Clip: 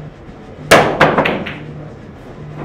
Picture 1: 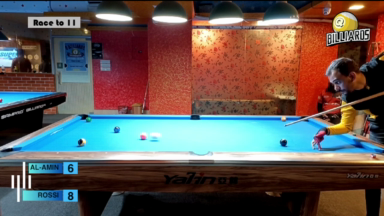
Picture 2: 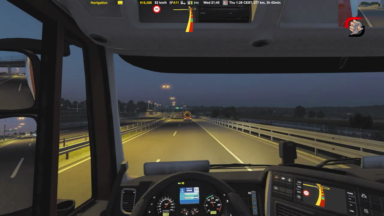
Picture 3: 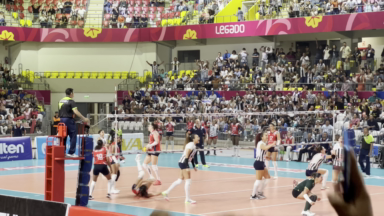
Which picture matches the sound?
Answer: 1